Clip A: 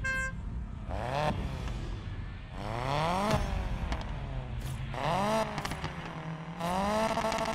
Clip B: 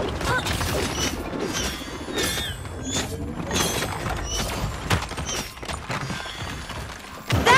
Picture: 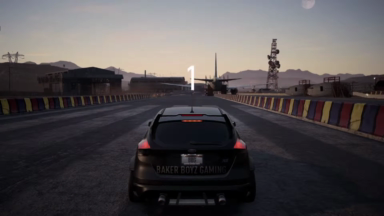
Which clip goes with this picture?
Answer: A